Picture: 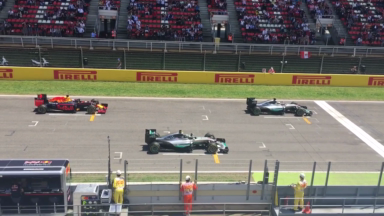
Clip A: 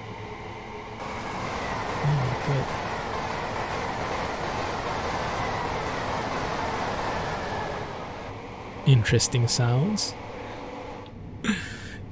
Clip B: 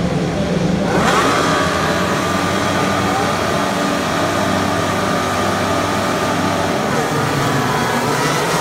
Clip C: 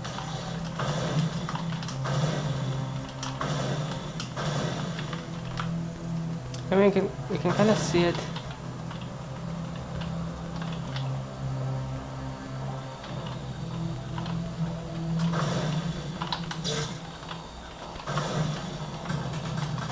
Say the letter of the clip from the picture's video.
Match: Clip B